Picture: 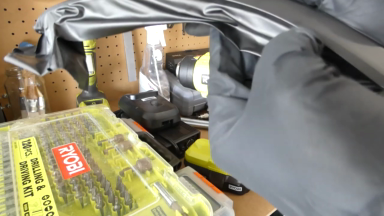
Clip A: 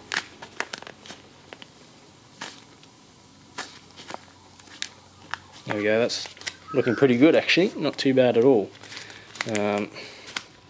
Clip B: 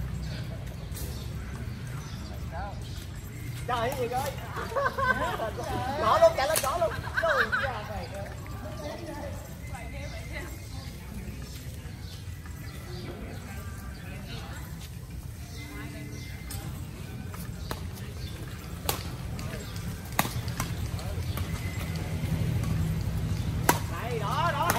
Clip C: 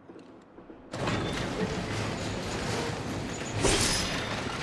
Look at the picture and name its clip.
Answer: A